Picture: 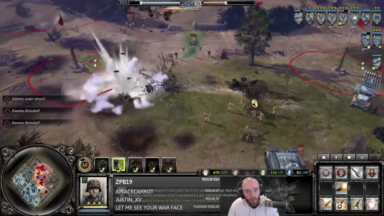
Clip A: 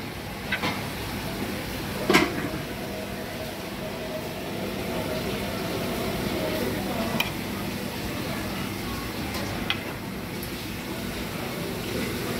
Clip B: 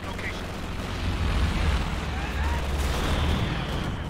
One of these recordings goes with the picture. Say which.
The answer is B